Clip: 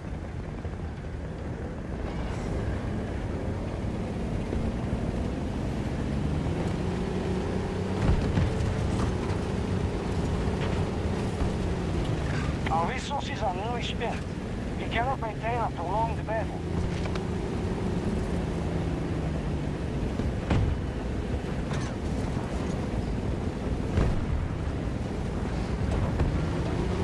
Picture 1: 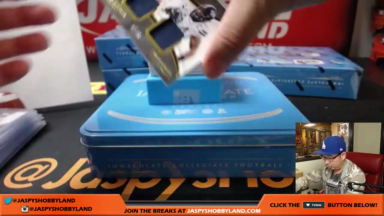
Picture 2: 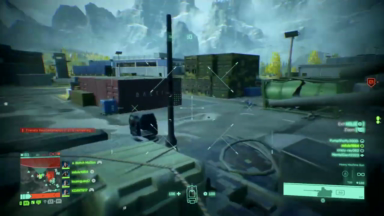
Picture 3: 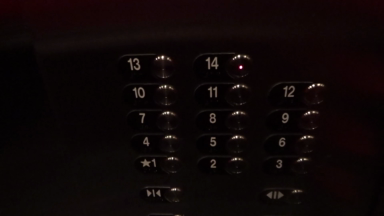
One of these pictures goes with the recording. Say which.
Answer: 2